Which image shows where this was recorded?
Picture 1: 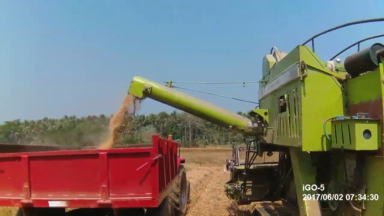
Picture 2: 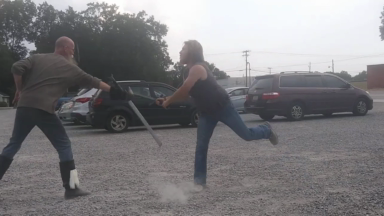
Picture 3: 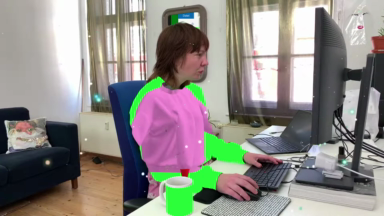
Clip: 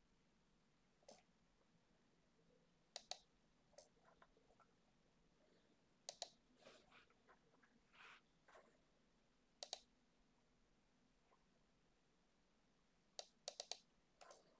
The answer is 3